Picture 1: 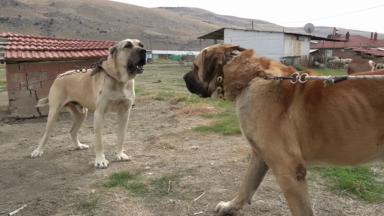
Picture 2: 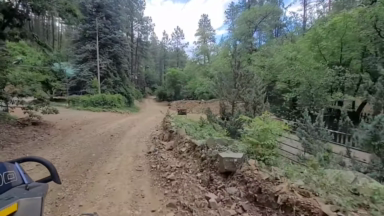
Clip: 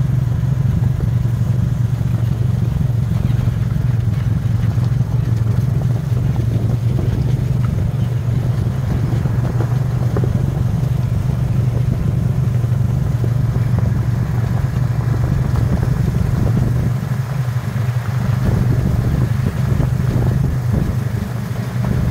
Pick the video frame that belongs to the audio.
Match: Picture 2